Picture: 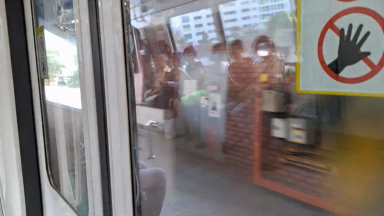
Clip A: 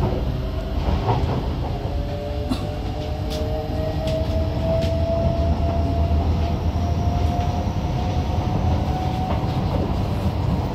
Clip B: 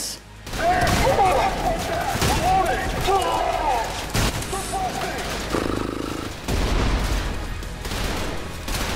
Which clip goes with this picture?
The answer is A